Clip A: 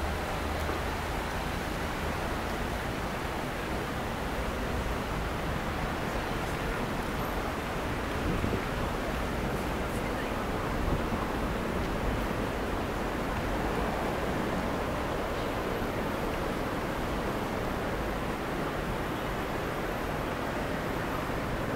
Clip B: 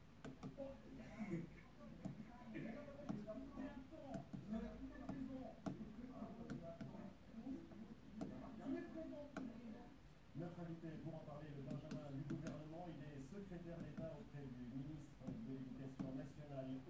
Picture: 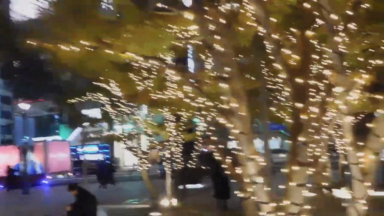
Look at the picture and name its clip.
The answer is A